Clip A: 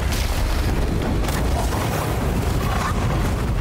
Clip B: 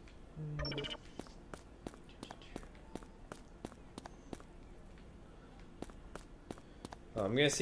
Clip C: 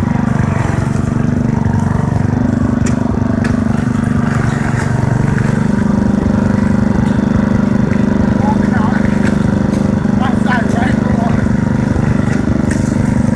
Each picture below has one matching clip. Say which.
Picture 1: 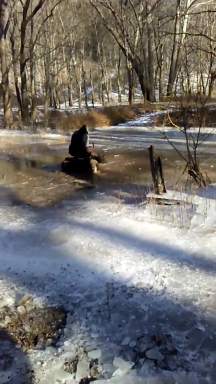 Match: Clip C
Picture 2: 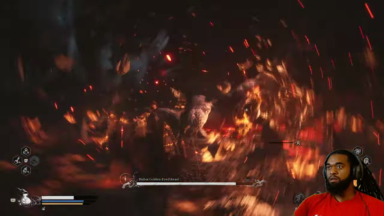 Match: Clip A